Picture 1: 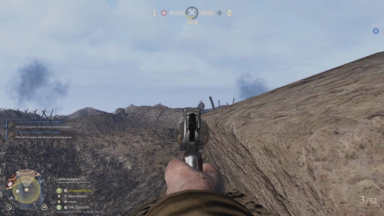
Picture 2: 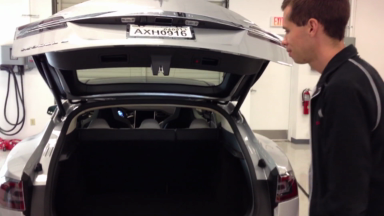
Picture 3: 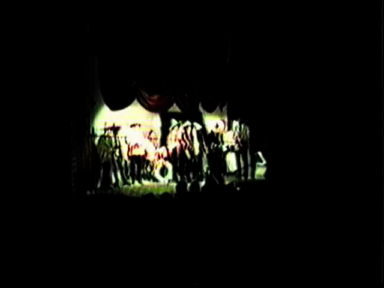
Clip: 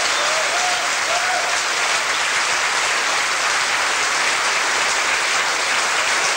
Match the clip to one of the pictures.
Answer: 3